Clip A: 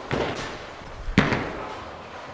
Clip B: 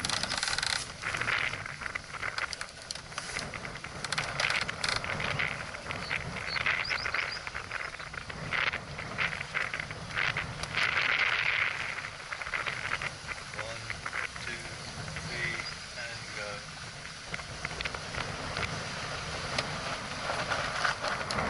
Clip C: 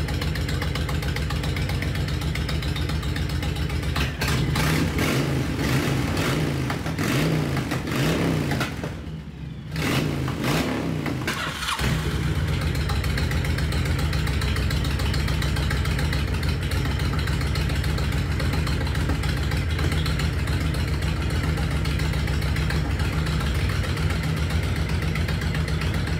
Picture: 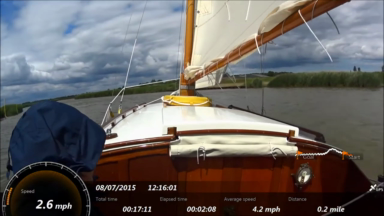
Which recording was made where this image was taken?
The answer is B